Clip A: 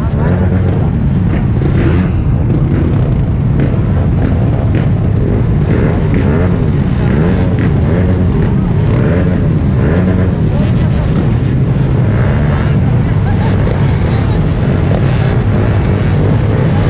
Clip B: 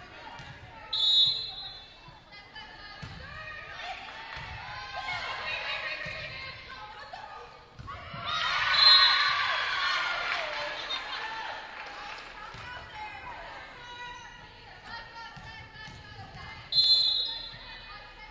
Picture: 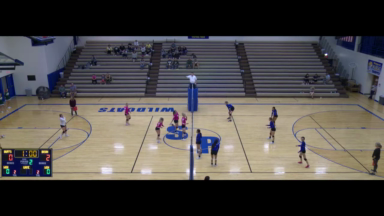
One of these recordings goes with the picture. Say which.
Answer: B